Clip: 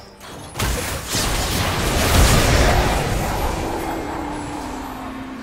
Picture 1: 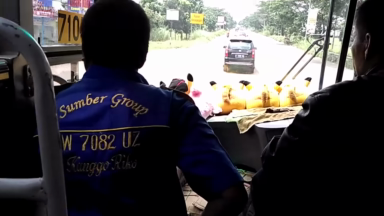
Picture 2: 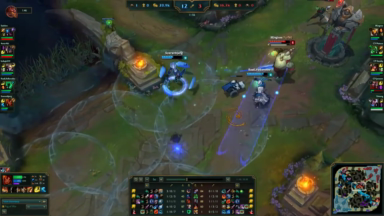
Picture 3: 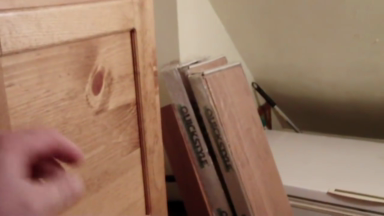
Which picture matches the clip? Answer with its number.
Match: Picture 2